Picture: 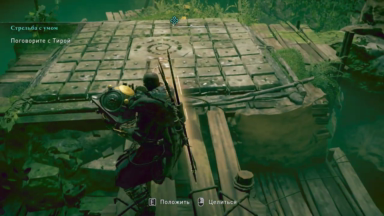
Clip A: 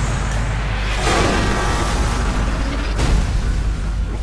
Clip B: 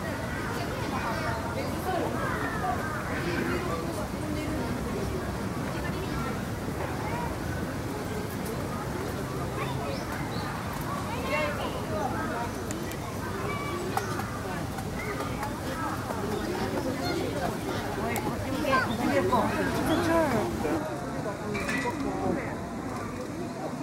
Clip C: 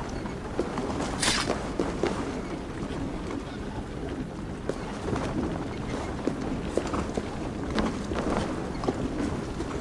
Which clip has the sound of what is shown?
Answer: C